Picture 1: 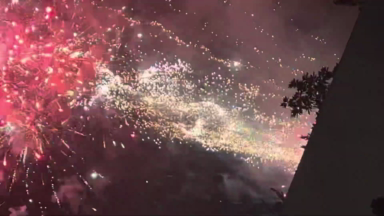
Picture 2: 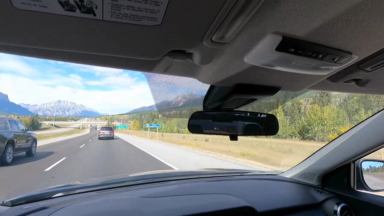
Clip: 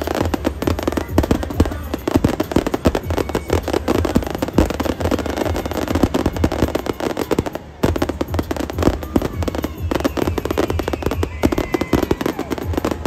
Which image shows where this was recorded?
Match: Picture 1